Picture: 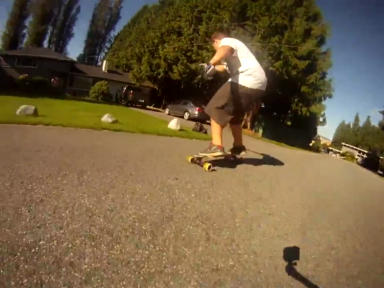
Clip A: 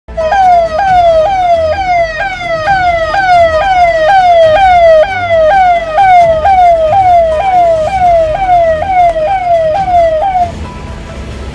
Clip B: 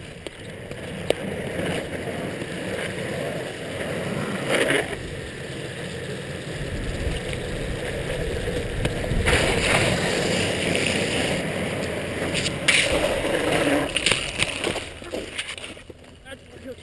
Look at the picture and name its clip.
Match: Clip B